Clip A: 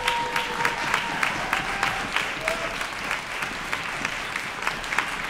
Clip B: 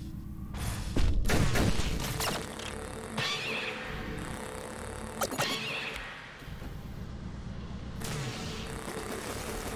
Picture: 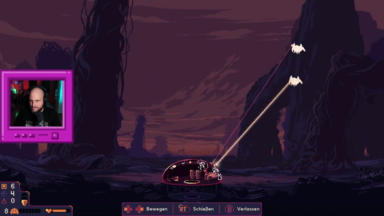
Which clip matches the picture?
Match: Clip B